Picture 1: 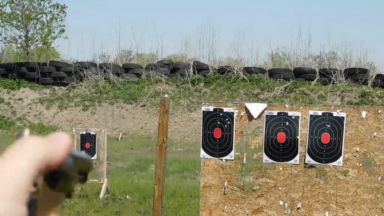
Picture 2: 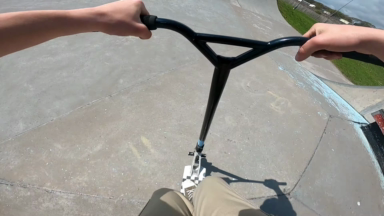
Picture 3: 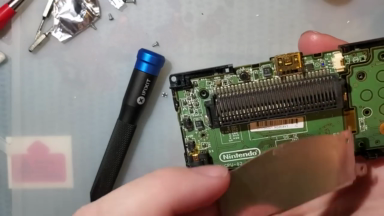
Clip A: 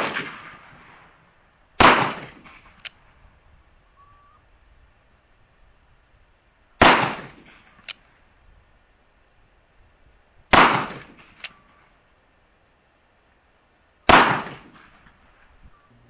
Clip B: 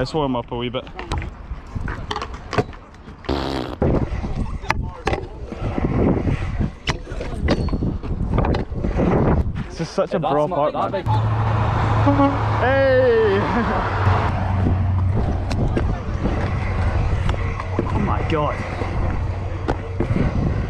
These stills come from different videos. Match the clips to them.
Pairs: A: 1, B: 2